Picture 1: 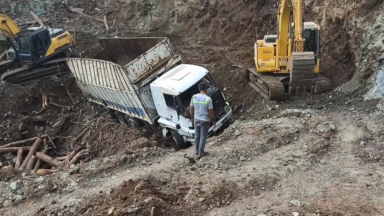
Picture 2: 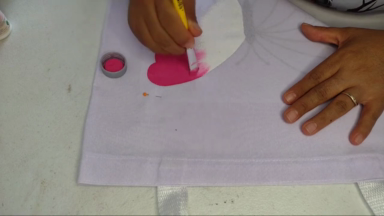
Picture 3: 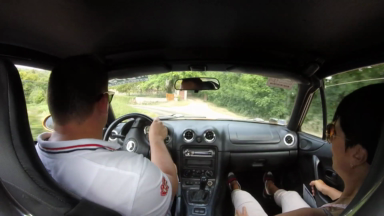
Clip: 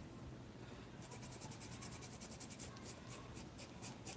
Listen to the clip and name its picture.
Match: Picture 2